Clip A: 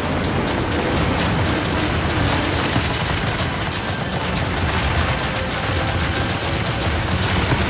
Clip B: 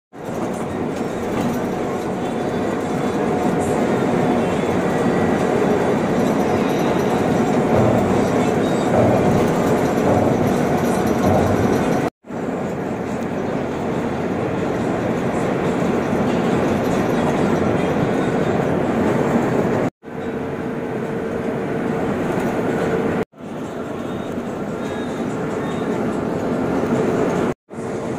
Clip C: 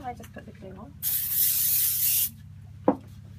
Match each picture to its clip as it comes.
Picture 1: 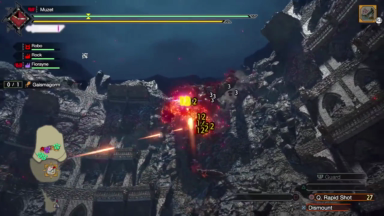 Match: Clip A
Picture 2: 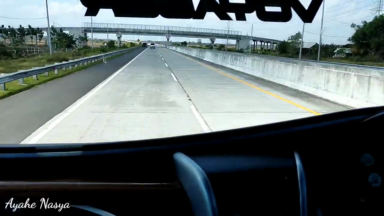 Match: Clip B